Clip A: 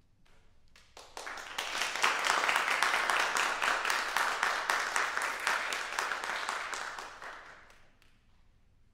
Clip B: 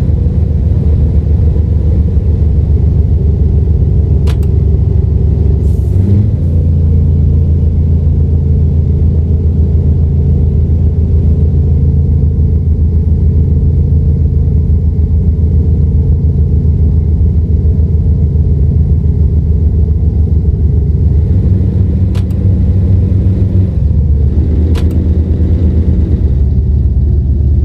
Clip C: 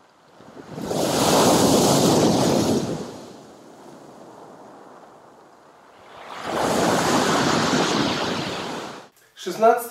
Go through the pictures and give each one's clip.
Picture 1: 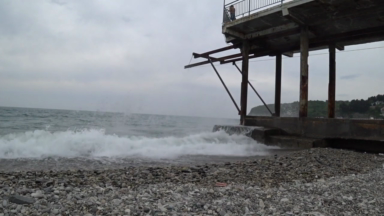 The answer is C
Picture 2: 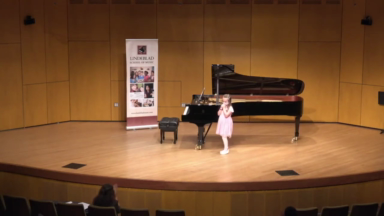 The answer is A